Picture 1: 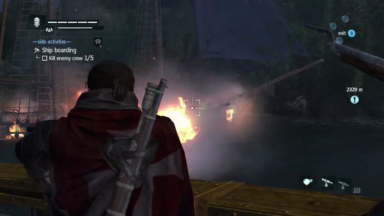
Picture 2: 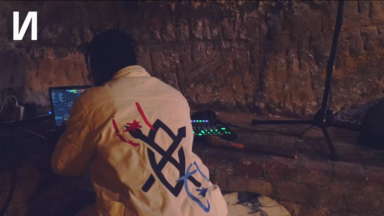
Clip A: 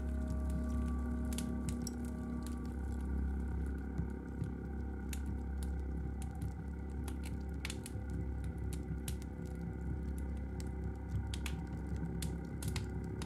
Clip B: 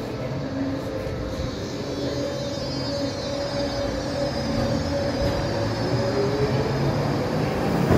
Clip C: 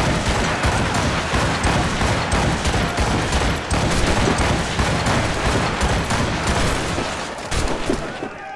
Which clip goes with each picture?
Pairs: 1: C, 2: A